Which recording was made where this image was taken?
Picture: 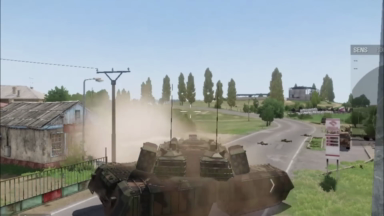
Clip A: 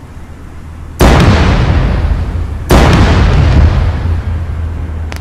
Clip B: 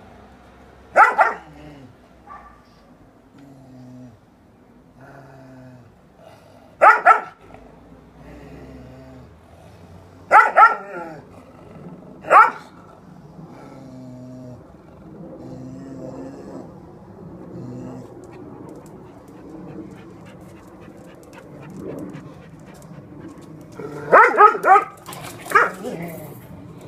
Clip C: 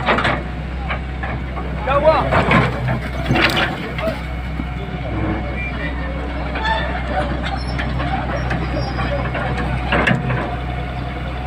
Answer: A